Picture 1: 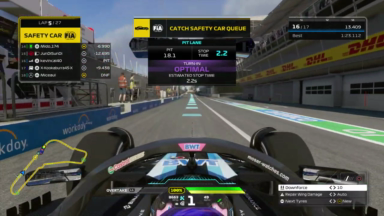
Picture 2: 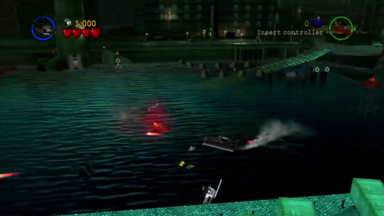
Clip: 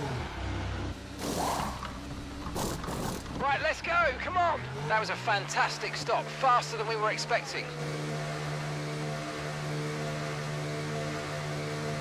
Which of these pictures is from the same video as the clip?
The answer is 1